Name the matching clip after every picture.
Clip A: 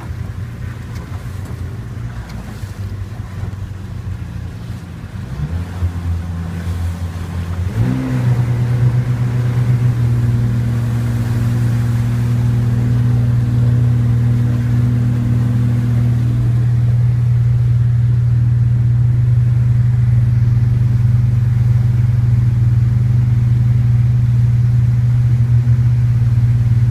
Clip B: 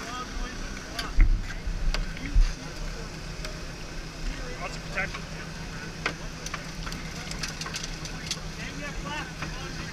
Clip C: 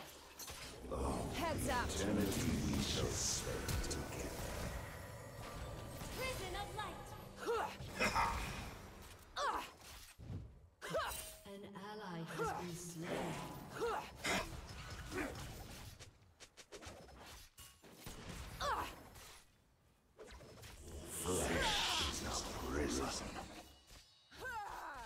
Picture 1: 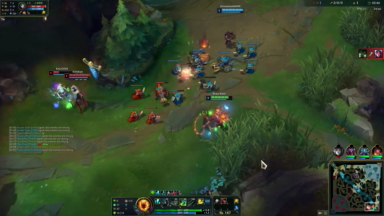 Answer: C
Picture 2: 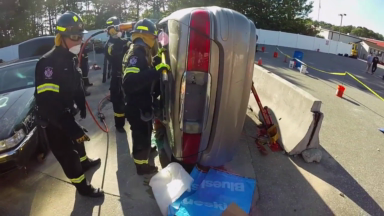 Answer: B